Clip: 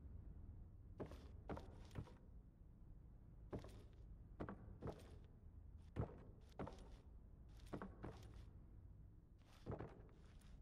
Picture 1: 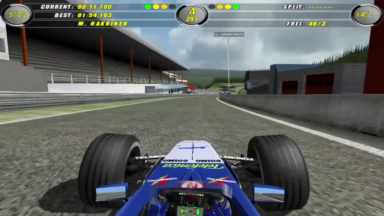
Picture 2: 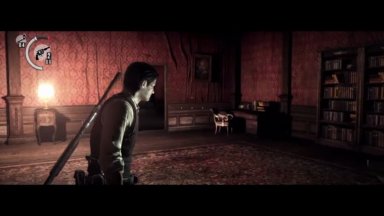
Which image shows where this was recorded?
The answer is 2